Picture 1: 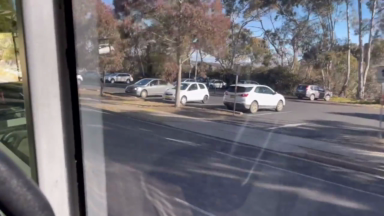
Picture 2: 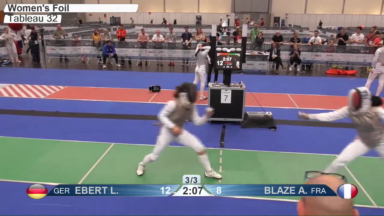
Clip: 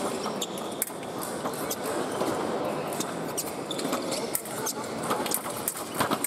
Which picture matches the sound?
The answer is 2